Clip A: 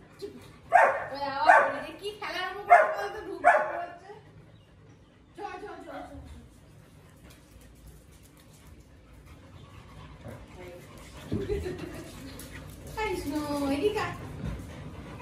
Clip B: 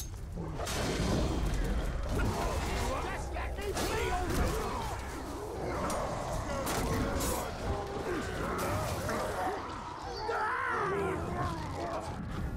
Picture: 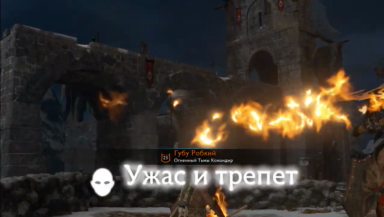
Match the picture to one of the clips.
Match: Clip B